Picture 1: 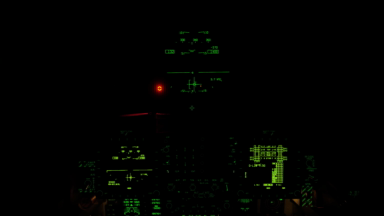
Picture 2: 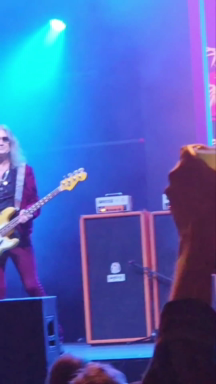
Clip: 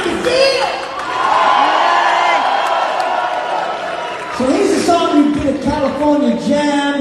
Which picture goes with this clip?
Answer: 2